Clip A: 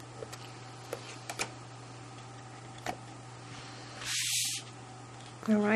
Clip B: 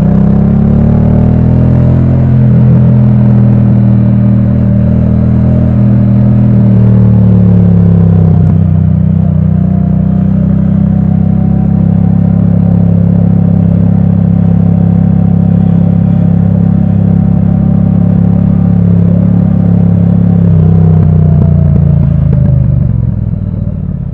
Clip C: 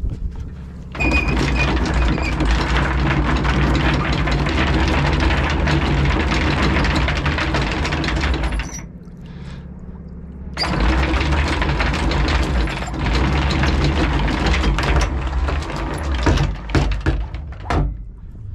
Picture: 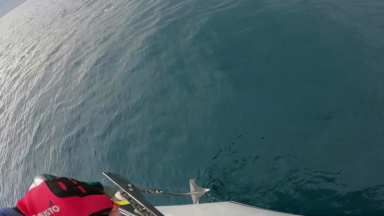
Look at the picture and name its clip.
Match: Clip C